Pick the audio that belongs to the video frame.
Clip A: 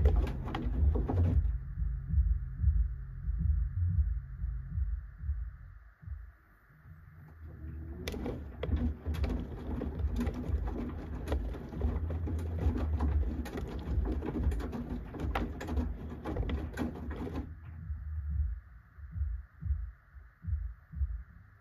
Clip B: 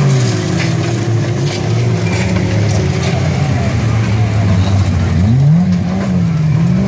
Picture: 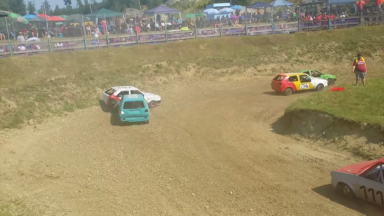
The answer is B